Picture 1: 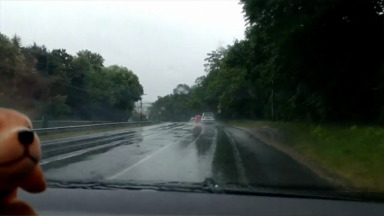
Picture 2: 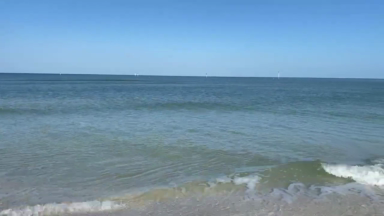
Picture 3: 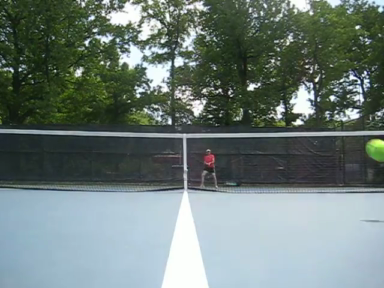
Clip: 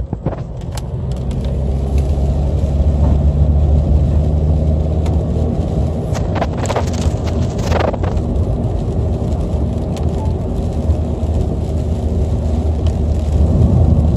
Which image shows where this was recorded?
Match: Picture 1